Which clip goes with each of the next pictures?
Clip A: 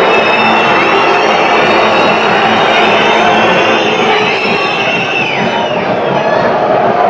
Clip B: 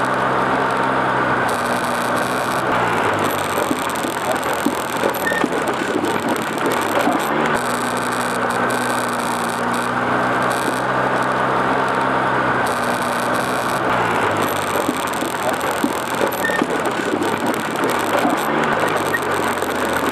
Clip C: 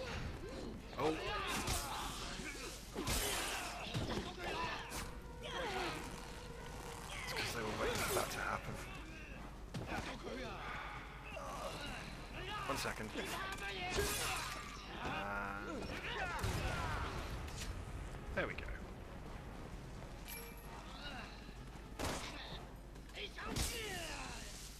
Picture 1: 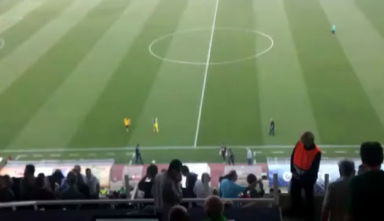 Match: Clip A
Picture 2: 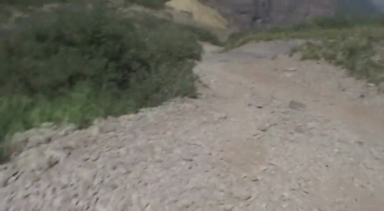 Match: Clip B